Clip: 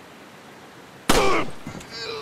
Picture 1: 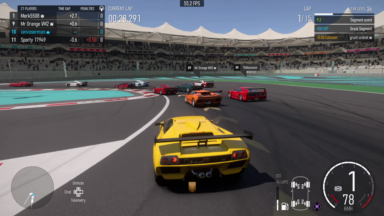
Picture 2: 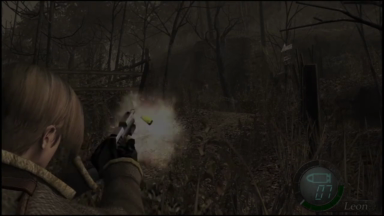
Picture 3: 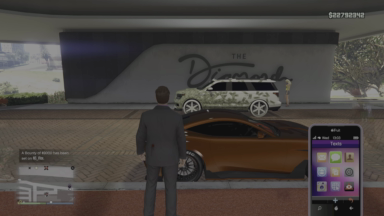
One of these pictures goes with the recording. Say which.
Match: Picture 2